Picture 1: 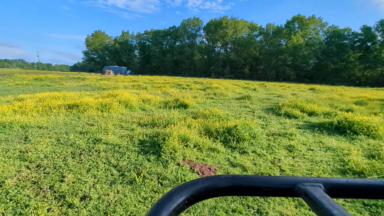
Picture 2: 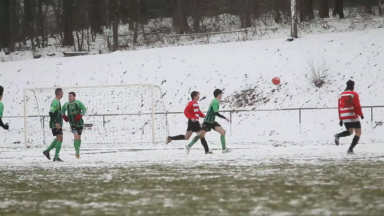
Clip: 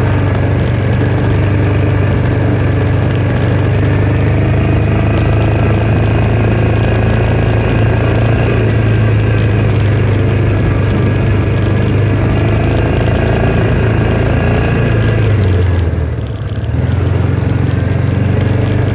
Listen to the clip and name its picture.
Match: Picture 1